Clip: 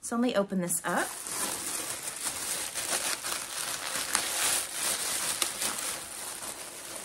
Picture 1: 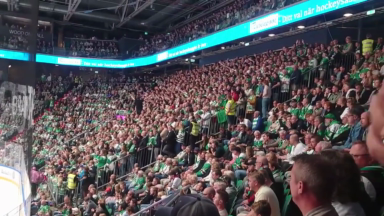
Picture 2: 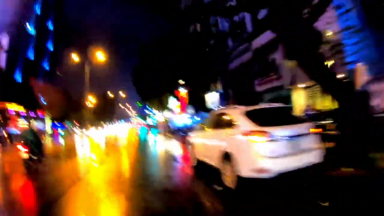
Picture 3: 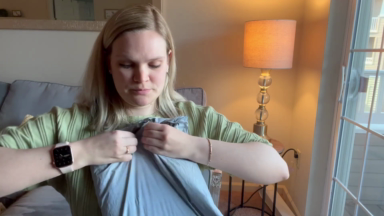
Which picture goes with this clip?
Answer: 3